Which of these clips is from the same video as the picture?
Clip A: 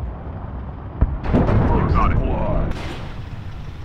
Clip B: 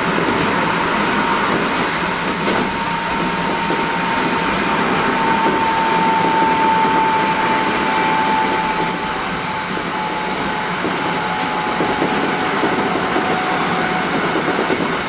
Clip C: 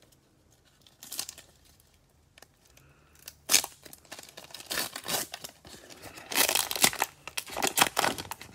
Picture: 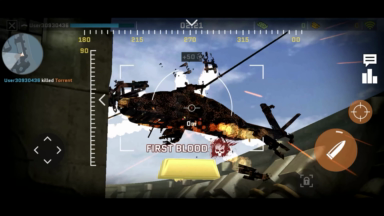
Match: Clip A